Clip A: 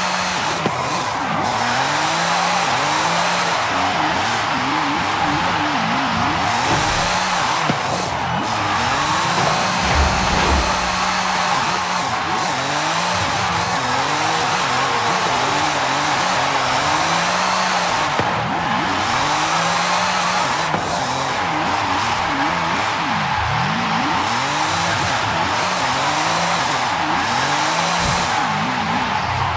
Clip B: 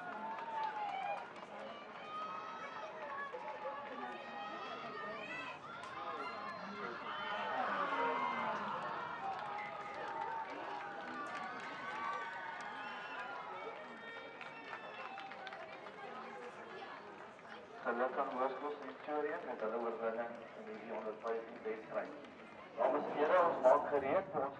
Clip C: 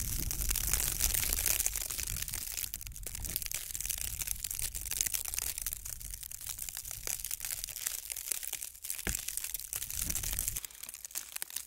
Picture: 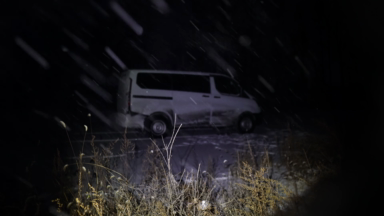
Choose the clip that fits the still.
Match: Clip C